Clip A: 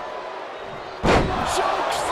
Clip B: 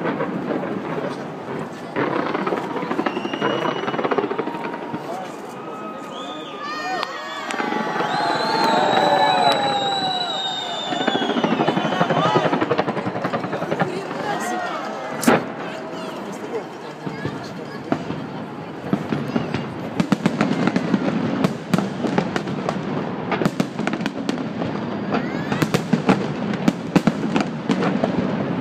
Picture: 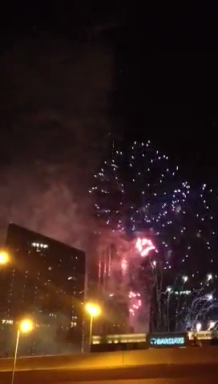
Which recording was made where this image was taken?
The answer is B